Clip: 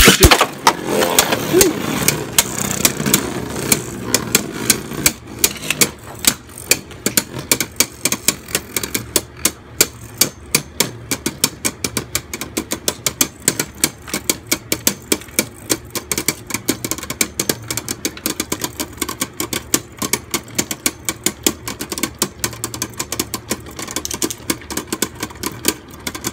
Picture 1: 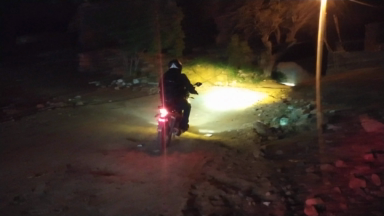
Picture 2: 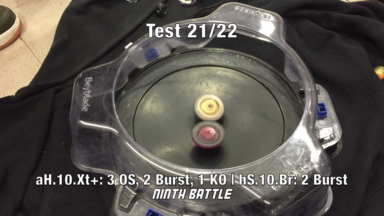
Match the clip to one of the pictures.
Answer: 2